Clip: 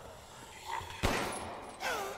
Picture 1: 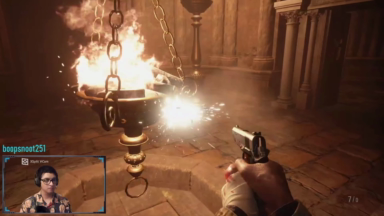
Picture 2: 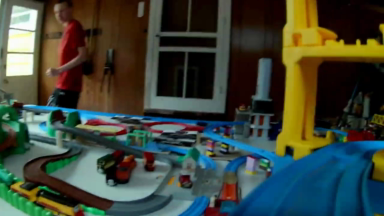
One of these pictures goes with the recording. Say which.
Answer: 1